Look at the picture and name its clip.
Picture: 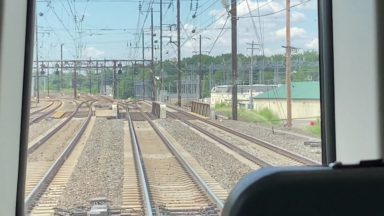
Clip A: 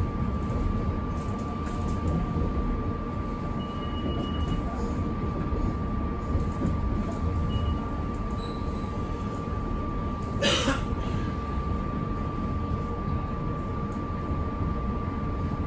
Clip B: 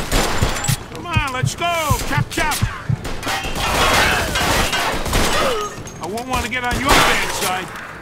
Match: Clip A